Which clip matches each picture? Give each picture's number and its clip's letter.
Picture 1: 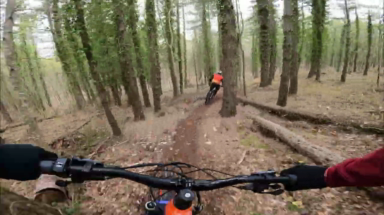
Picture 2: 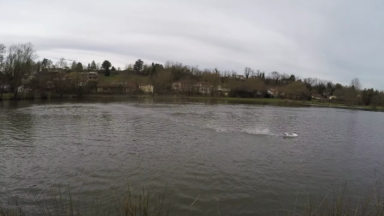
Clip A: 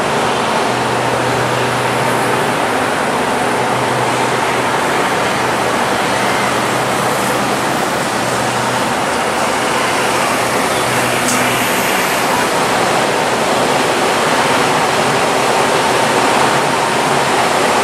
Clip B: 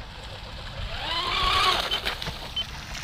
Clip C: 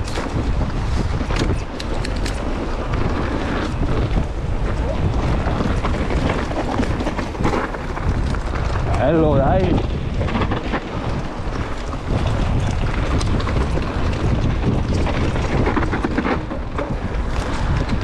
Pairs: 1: C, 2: B